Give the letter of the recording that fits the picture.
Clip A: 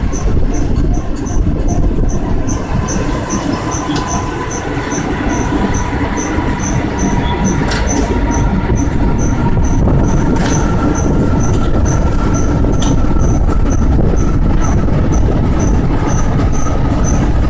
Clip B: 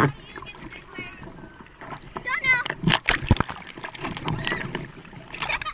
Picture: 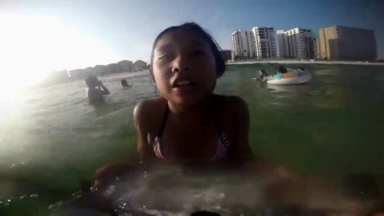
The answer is B